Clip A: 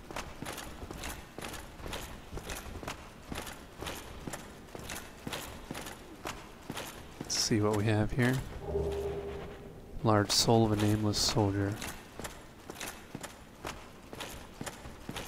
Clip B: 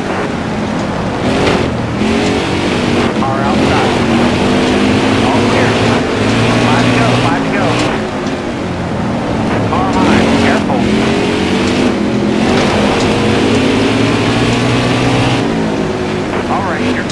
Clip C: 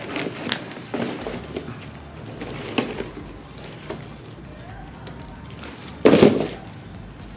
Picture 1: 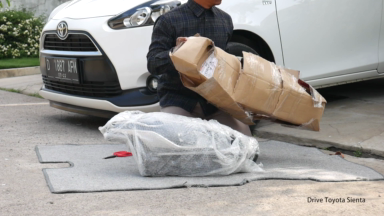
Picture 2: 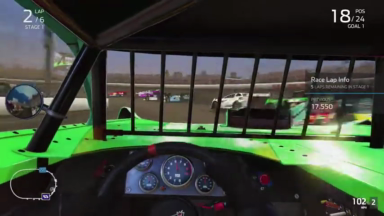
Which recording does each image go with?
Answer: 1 C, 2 B